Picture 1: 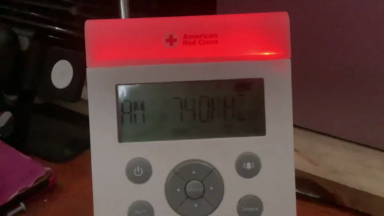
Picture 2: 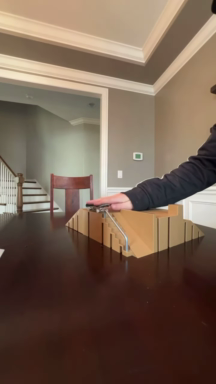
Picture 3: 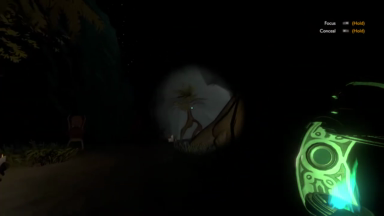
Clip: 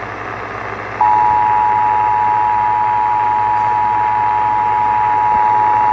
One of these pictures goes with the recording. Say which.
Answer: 1